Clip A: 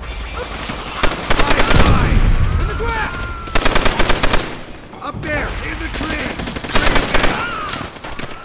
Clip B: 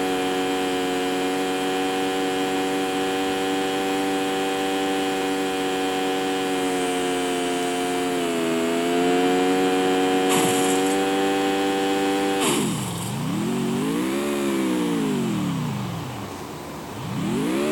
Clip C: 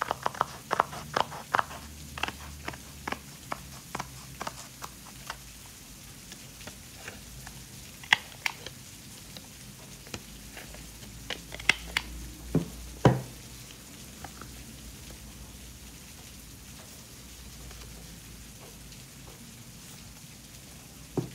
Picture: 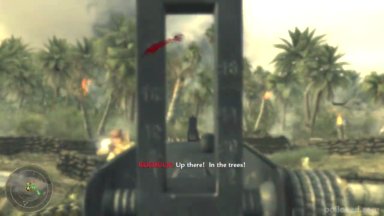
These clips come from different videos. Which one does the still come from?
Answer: A